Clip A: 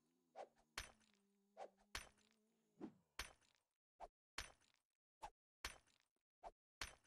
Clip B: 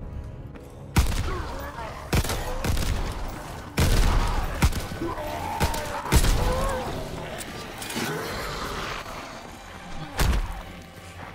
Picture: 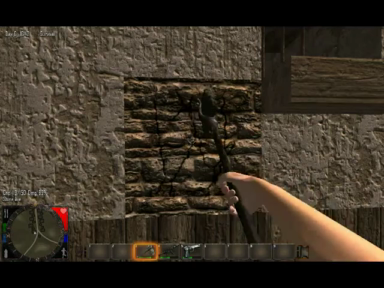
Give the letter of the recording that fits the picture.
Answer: A